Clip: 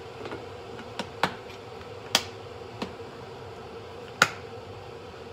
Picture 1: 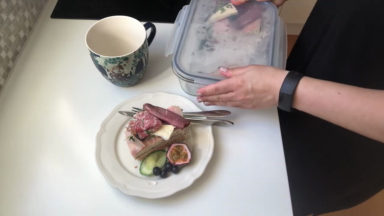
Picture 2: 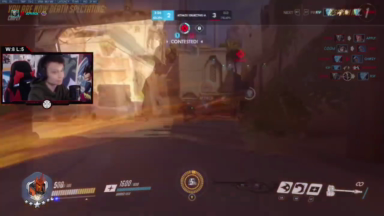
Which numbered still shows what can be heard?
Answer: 1